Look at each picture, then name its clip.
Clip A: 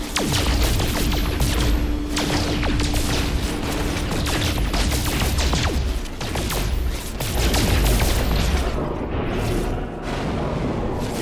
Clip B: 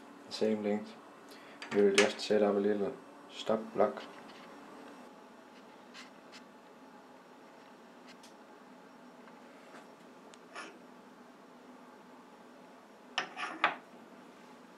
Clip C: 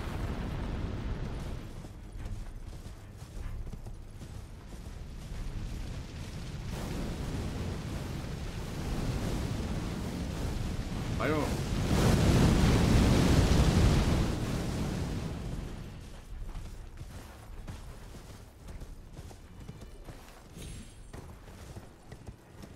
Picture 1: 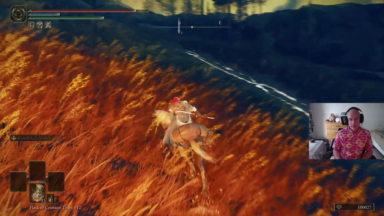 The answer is C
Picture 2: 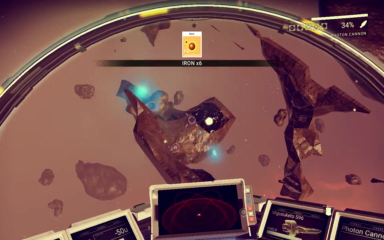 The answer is A